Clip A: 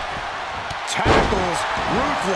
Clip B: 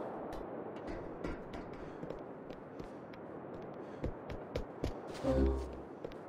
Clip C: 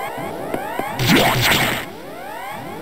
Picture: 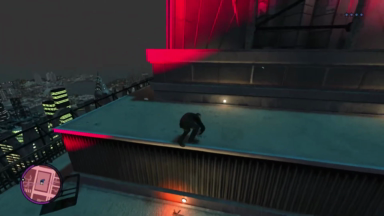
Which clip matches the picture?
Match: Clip B